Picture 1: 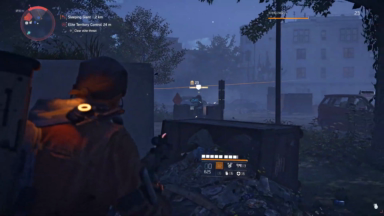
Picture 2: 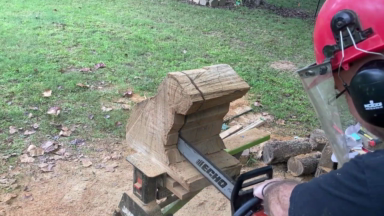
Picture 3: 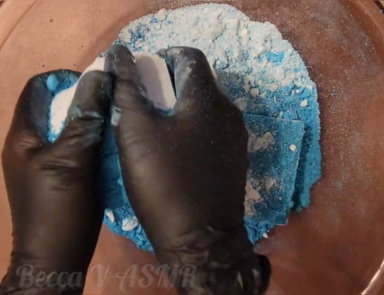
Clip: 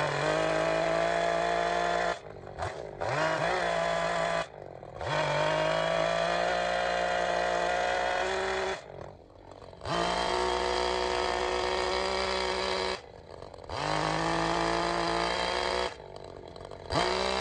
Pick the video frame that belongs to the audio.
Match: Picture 2